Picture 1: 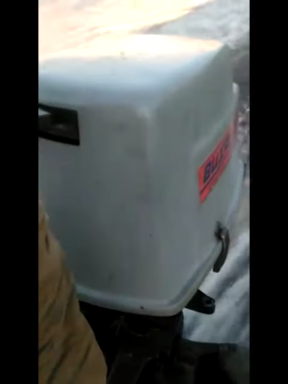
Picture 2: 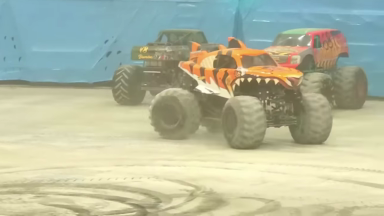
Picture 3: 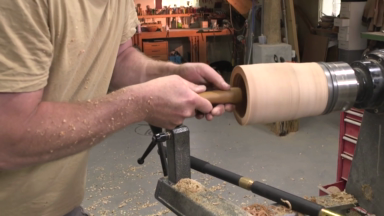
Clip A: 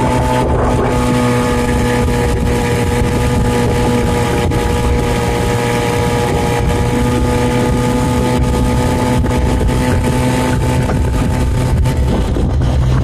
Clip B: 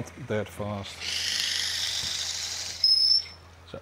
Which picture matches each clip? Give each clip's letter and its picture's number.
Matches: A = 1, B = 3